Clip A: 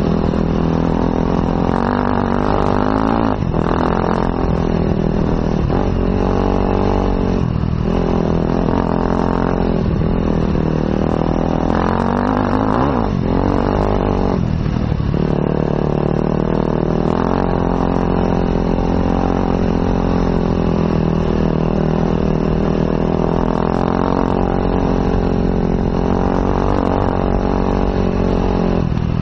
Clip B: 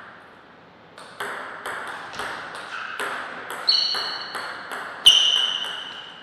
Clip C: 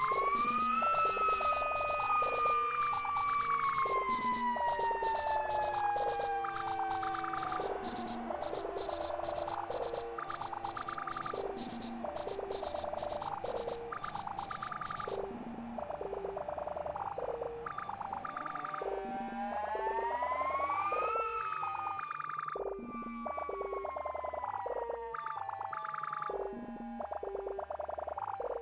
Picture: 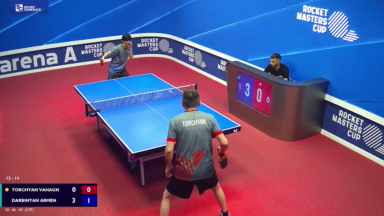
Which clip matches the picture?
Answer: B